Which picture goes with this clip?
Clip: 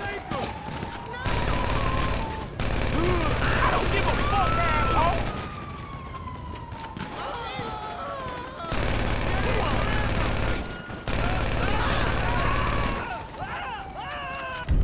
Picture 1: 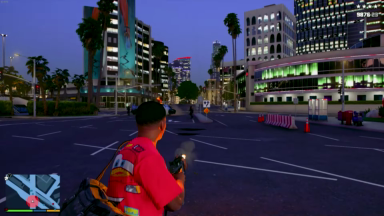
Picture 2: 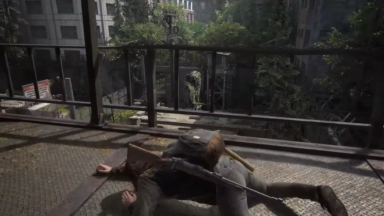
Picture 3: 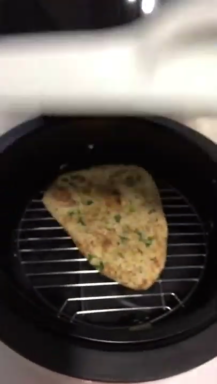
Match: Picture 1